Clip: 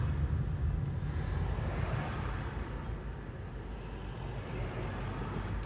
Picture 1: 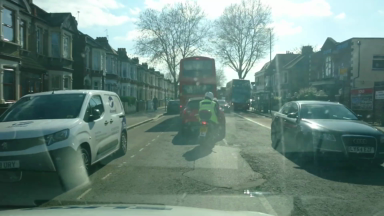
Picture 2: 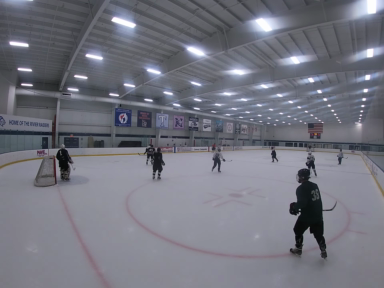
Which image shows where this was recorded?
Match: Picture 1